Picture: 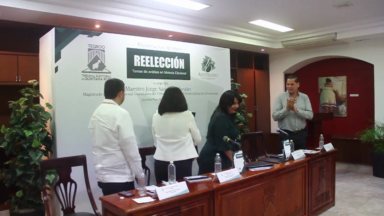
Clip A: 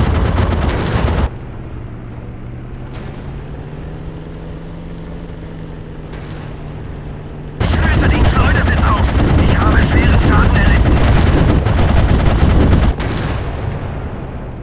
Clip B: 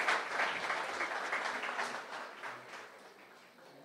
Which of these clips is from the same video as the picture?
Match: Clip B